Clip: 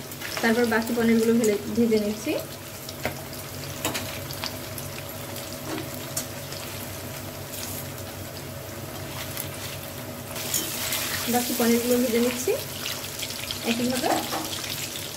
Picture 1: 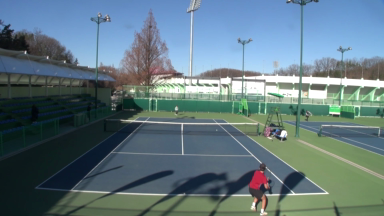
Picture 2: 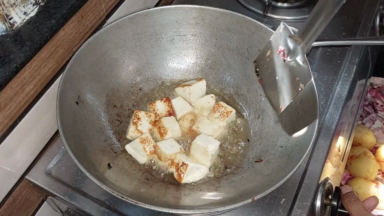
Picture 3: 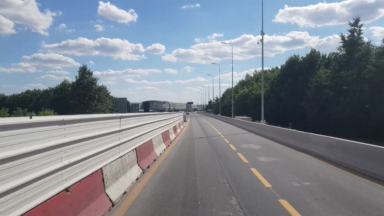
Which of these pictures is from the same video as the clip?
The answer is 2